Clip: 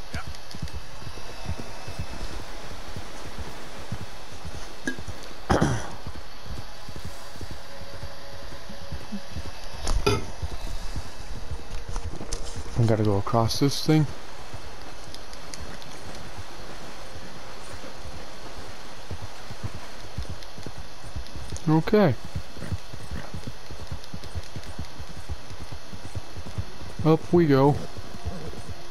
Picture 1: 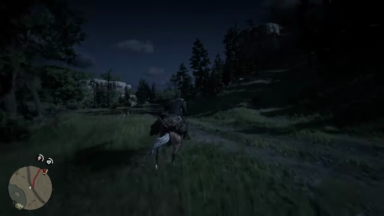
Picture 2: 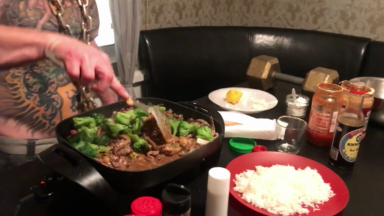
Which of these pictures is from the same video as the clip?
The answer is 1